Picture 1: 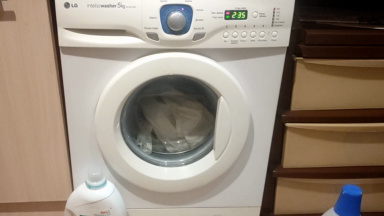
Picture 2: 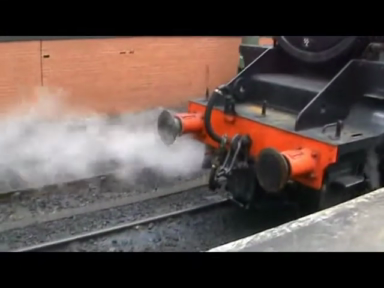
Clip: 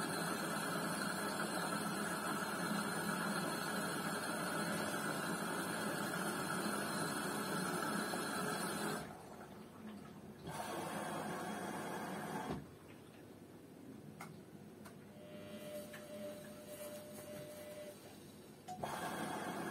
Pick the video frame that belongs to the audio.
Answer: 1